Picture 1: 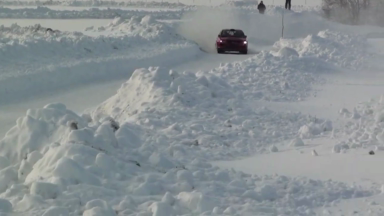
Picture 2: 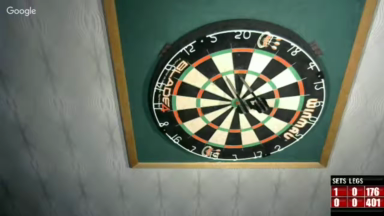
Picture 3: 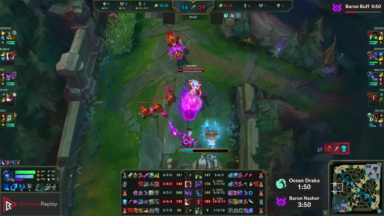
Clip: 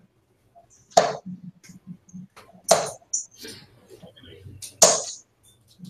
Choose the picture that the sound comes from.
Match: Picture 2